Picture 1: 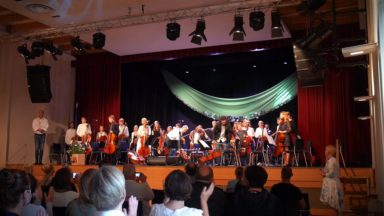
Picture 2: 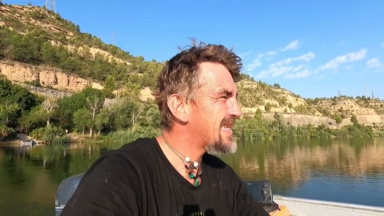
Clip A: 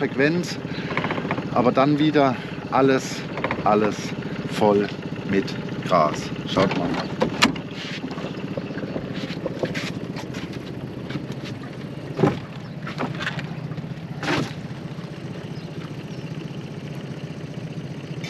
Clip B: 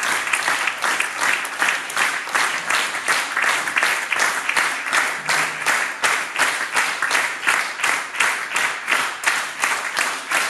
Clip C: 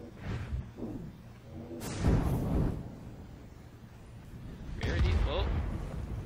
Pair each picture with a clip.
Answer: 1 B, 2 A